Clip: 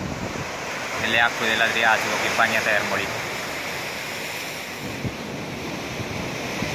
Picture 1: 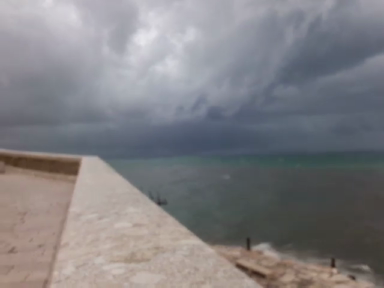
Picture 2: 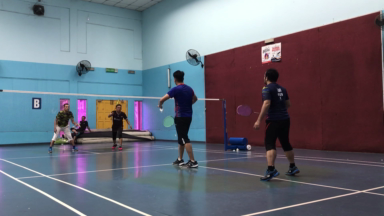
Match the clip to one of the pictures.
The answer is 1